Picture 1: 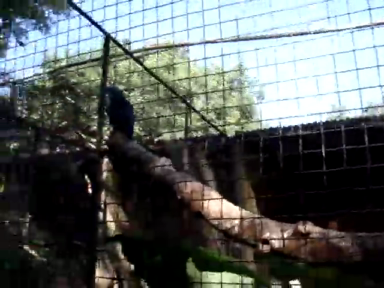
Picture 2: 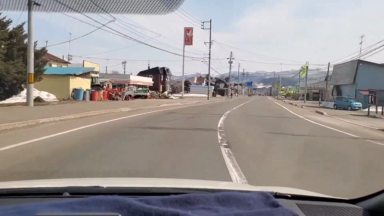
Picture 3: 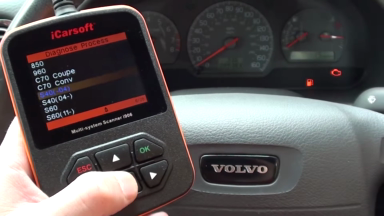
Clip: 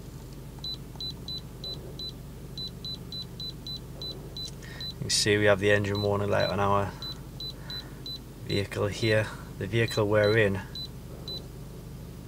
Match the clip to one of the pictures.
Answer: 3